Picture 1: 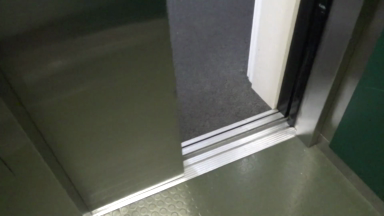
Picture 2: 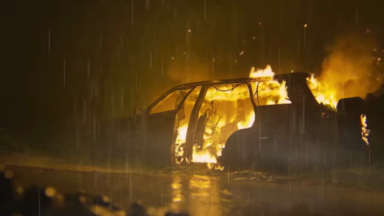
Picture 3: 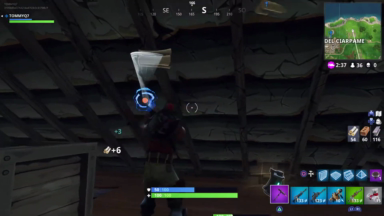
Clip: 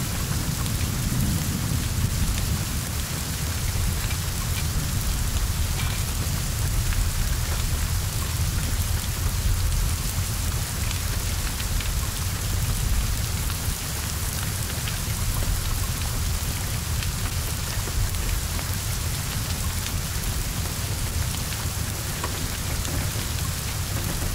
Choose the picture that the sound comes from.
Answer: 2